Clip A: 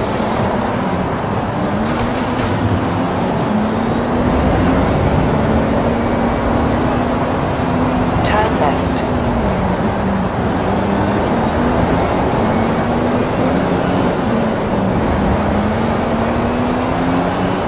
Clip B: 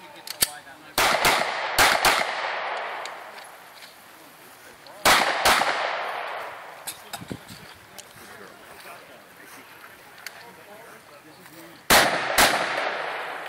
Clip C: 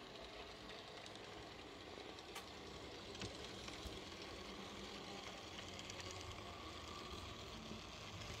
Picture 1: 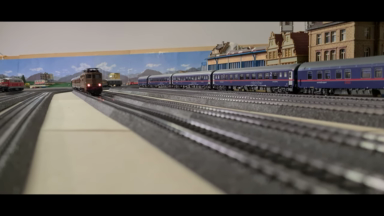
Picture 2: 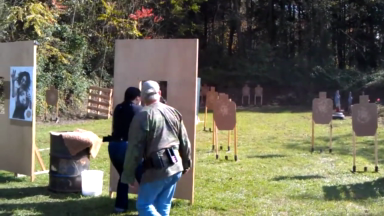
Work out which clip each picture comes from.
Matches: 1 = C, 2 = B